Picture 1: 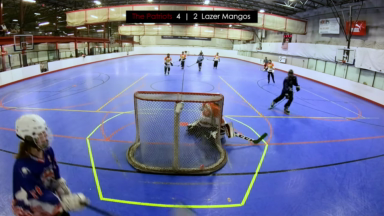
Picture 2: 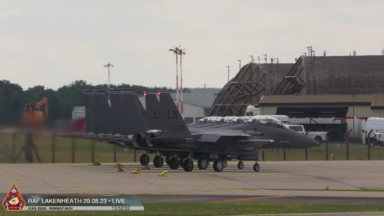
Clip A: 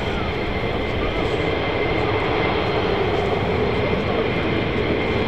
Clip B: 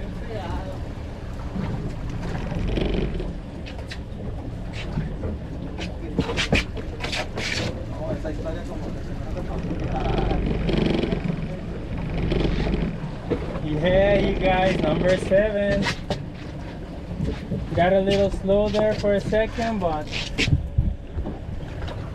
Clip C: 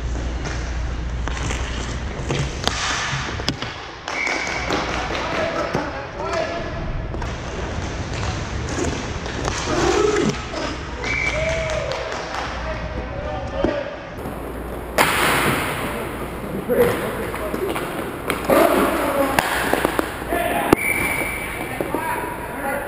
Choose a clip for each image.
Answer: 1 C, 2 A